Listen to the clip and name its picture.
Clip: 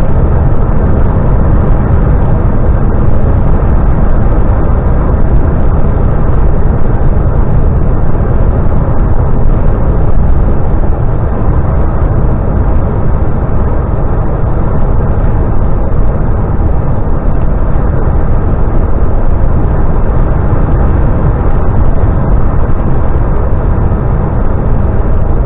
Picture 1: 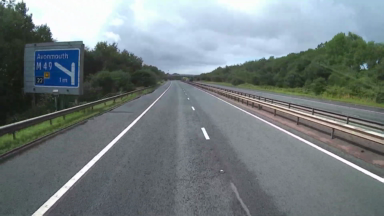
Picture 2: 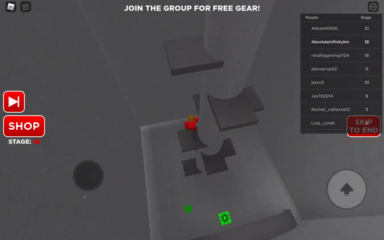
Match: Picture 1